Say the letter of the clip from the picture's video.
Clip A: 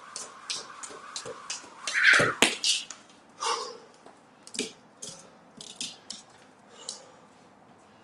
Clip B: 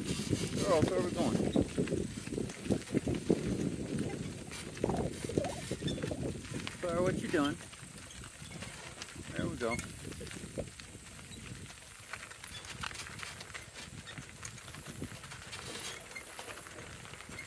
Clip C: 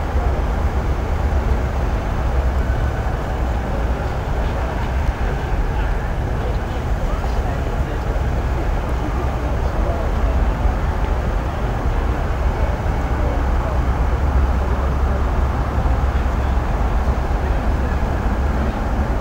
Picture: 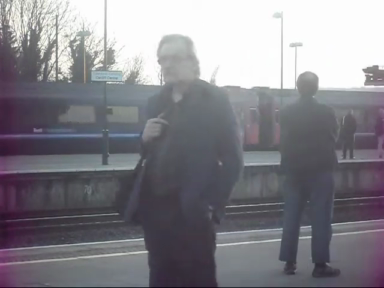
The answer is C